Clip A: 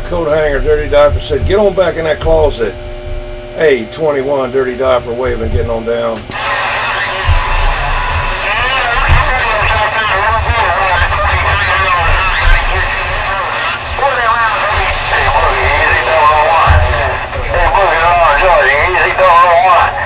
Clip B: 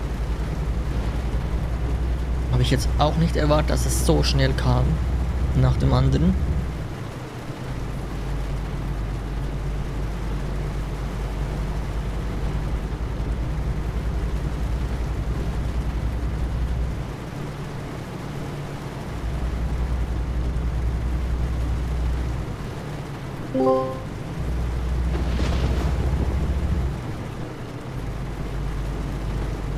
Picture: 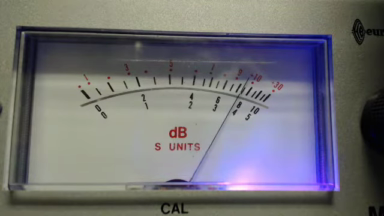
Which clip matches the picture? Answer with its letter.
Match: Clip A